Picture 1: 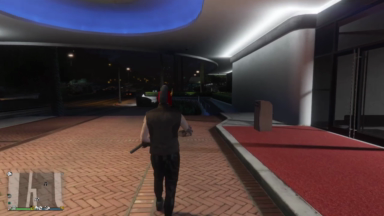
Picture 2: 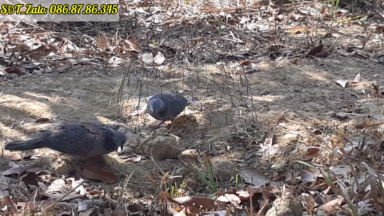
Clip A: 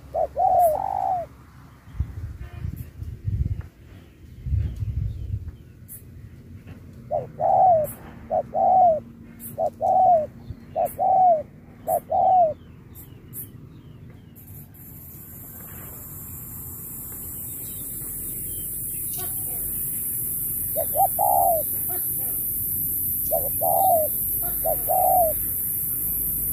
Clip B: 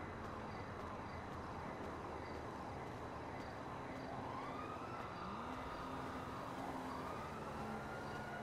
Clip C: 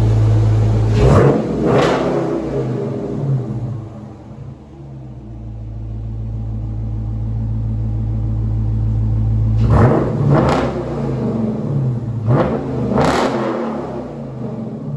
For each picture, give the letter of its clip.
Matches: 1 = B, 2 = A